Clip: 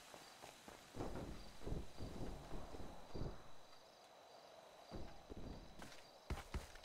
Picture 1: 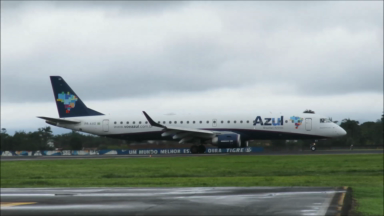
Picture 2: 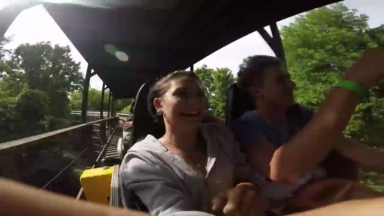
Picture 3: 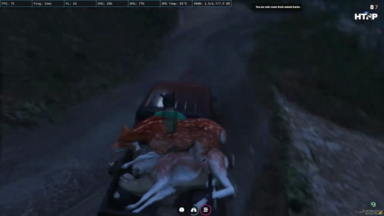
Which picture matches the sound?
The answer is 3